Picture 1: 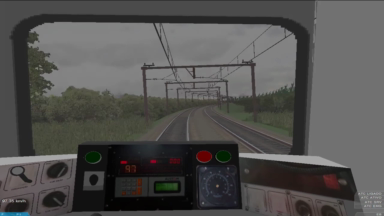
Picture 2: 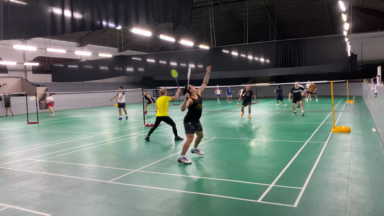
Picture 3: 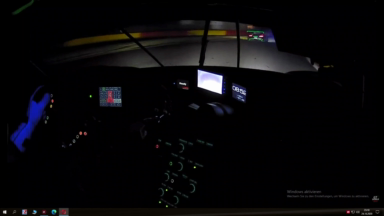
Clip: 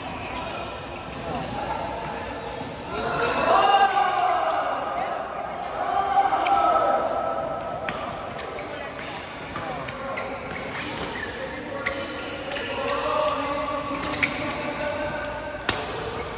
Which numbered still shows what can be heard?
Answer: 2